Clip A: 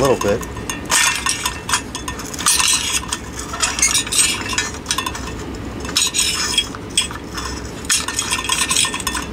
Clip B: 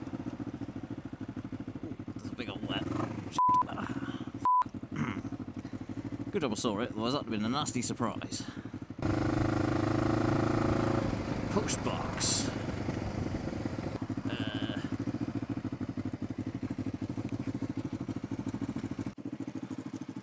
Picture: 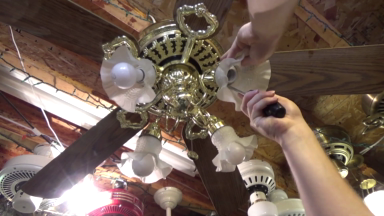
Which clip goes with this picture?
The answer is A